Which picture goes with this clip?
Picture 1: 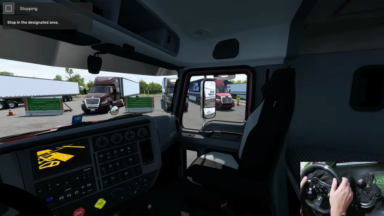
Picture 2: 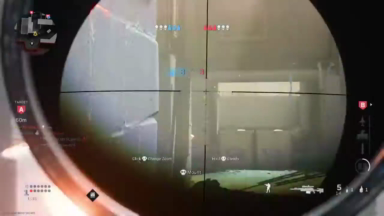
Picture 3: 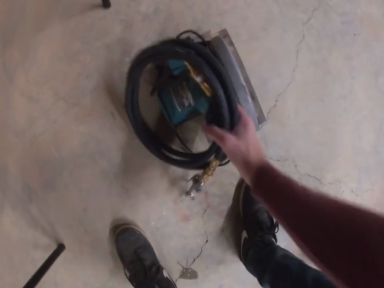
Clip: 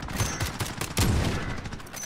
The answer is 2